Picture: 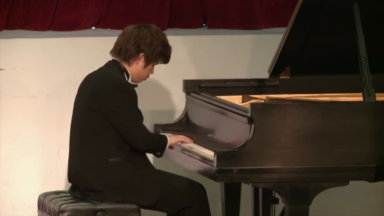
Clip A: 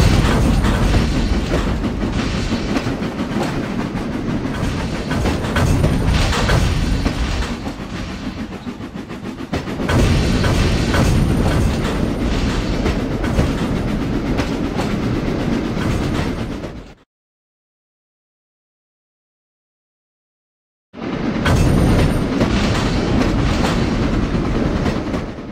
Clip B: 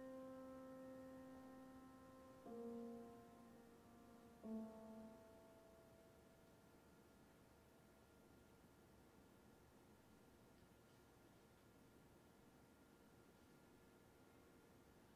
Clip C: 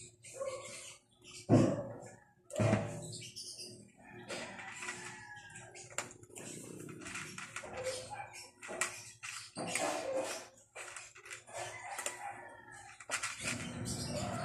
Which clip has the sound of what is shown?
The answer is B